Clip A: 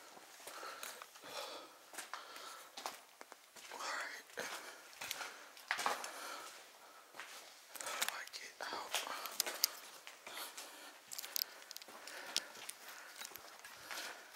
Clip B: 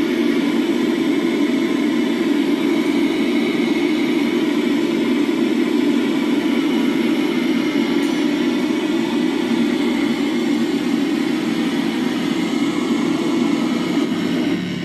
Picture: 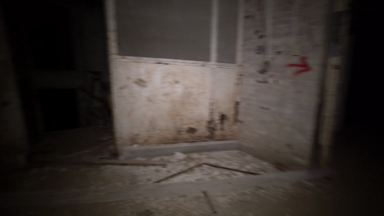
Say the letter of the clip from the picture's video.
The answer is A